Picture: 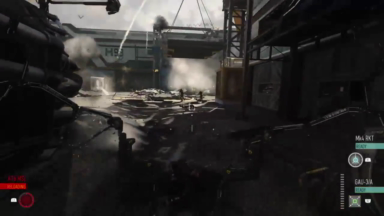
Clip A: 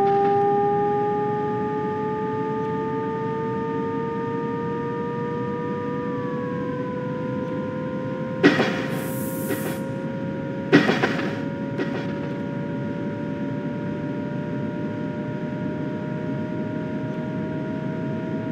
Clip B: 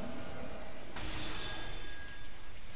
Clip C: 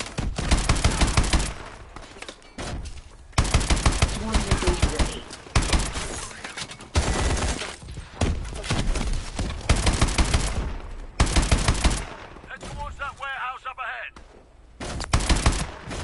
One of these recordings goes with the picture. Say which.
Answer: C